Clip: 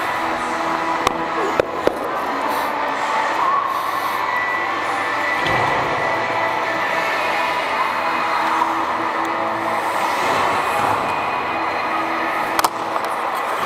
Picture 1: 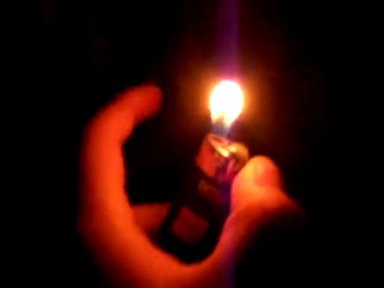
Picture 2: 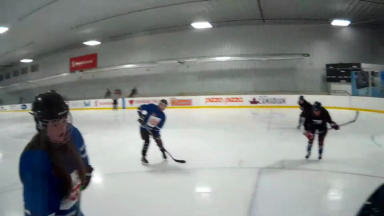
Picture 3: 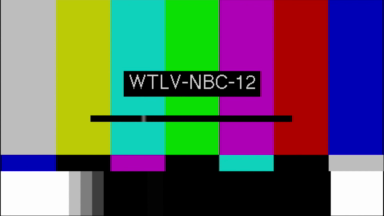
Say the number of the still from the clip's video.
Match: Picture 2